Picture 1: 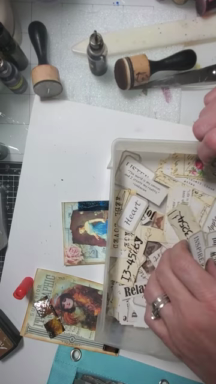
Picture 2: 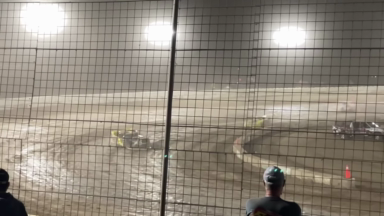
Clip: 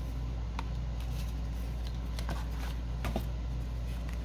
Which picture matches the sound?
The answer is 1